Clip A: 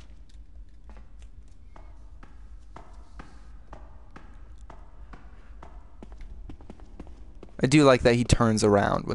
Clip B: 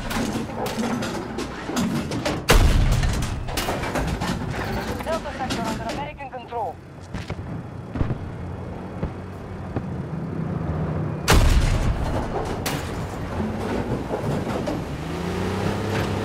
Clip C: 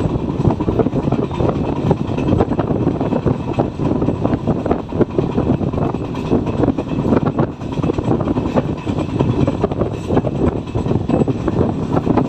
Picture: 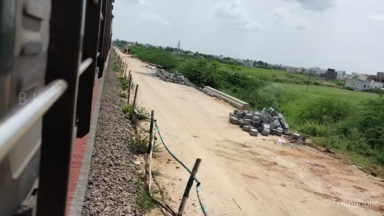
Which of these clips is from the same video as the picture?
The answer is C